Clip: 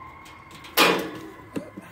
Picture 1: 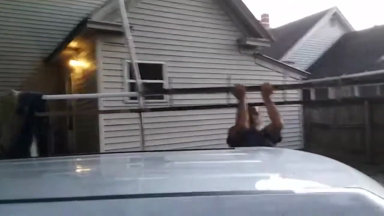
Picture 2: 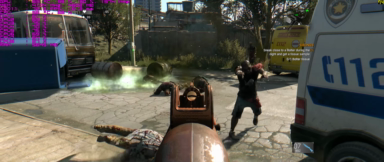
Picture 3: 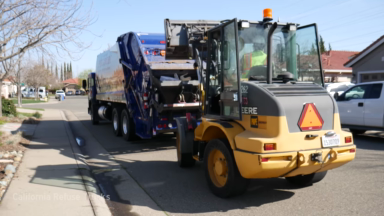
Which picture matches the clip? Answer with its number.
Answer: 1